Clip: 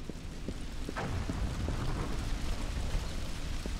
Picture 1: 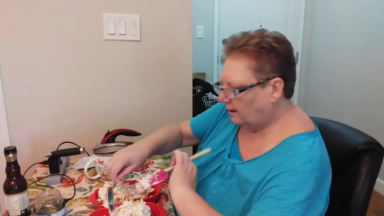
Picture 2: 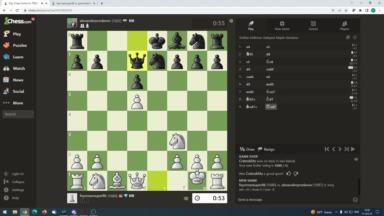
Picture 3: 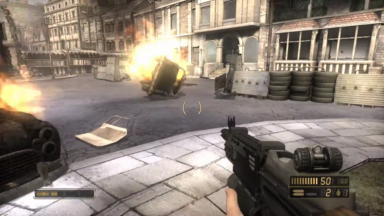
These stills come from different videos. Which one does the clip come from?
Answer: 3